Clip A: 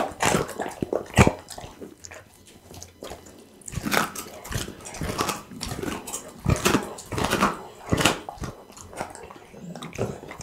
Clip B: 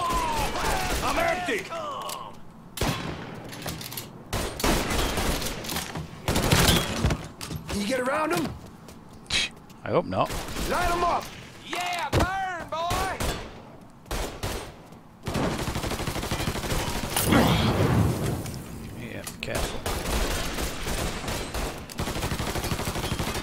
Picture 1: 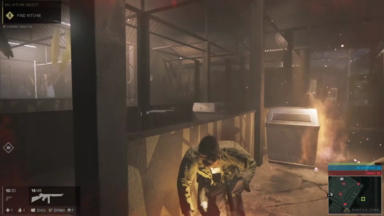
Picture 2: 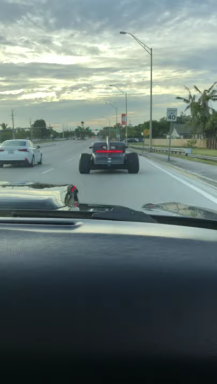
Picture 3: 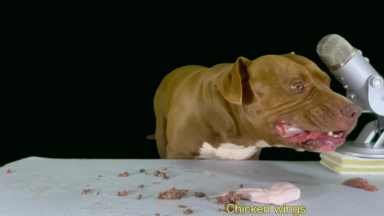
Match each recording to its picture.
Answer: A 3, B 1